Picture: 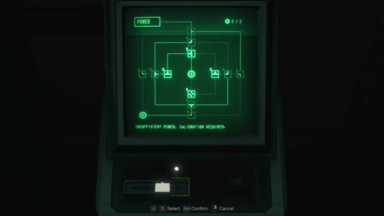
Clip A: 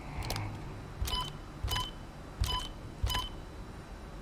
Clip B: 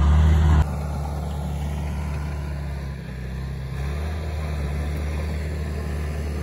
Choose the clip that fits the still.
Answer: A